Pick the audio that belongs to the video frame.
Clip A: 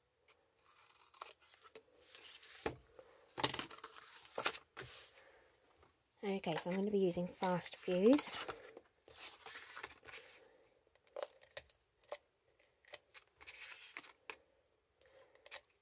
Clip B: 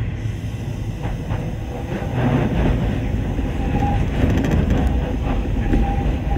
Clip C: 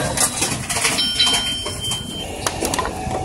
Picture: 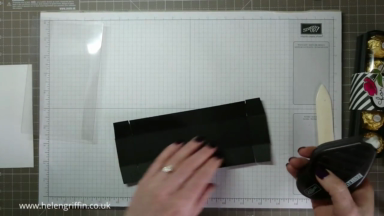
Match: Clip A